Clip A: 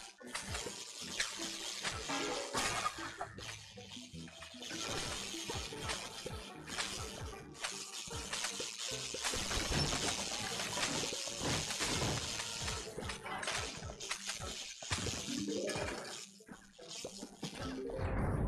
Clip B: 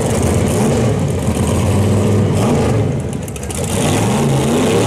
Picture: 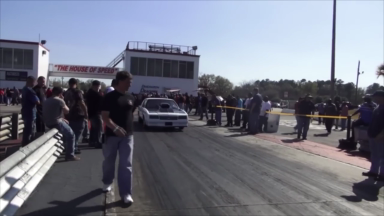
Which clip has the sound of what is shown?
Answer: B